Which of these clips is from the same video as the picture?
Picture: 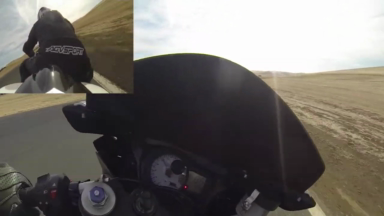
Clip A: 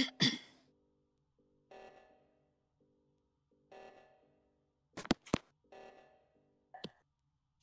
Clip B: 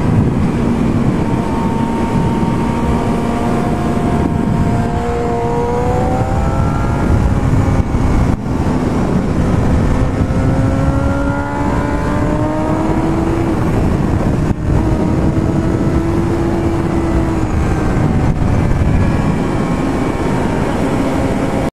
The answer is B